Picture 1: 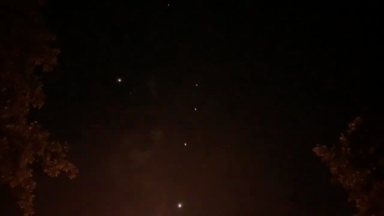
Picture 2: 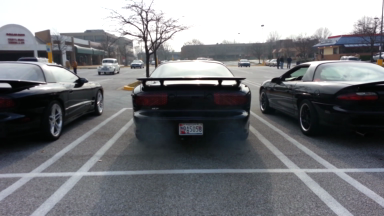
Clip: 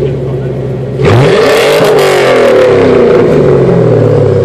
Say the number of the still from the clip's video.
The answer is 2